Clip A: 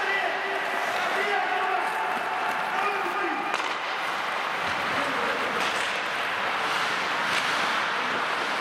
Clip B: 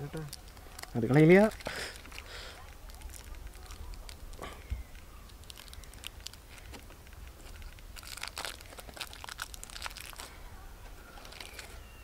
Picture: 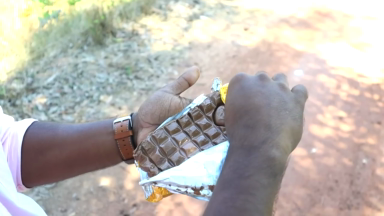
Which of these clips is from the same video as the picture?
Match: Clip B